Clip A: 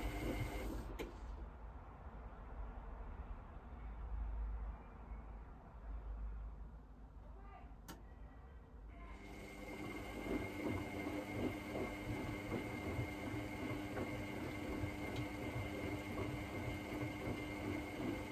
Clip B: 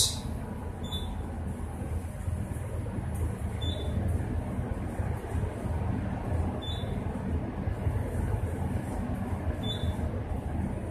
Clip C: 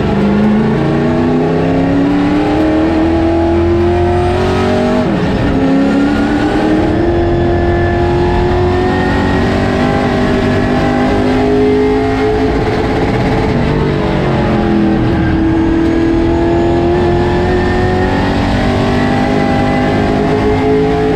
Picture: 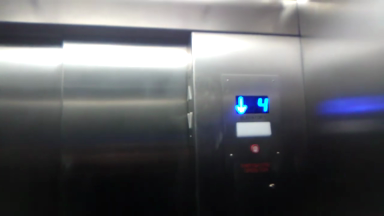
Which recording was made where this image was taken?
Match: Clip B